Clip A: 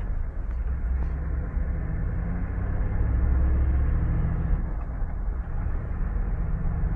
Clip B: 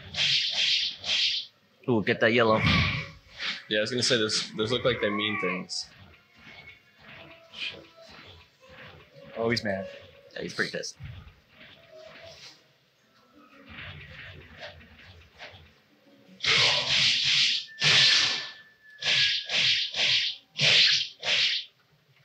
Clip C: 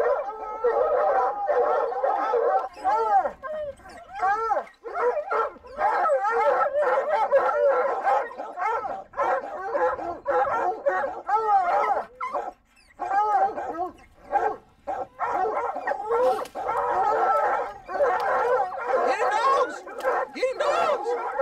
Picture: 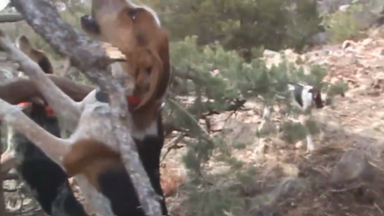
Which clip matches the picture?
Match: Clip C